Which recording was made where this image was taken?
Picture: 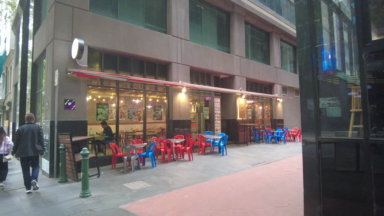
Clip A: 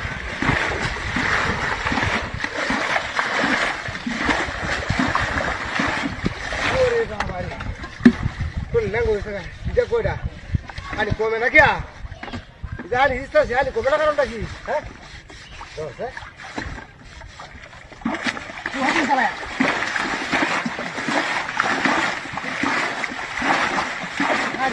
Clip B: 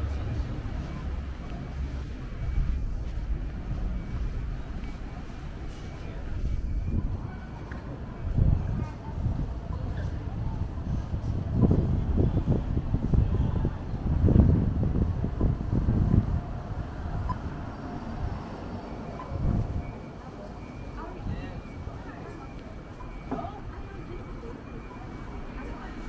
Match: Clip B